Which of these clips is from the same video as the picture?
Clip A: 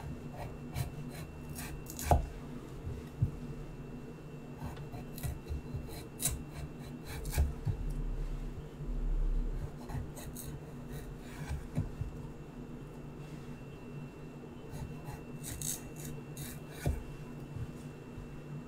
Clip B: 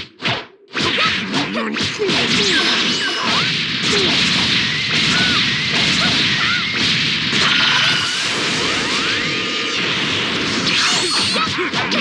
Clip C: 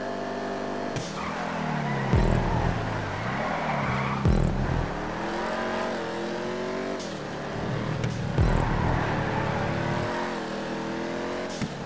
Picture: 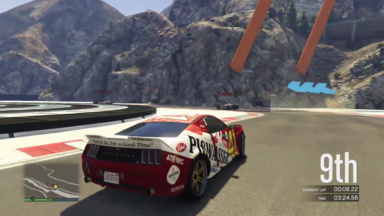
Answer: C